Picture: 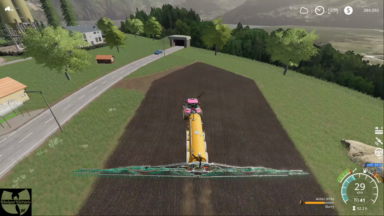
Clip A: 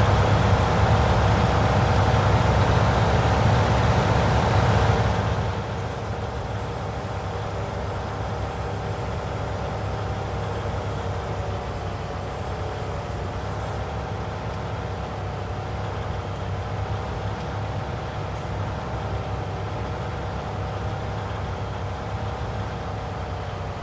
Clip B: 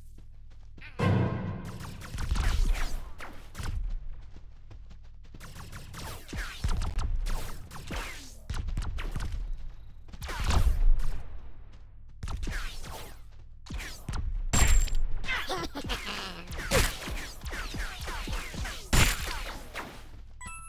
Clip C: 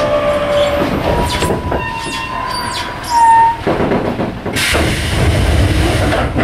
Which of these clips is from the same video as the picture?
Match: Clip A